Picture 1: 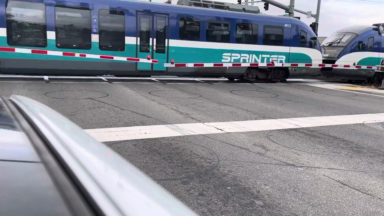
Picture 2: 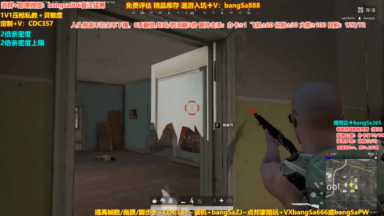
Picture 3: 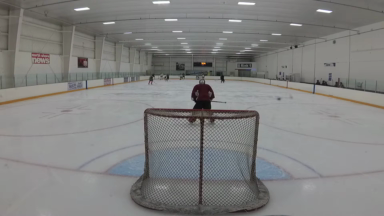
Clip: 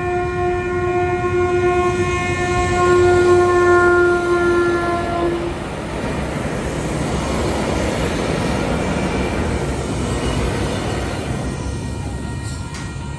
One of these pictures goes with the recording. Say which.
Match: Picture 1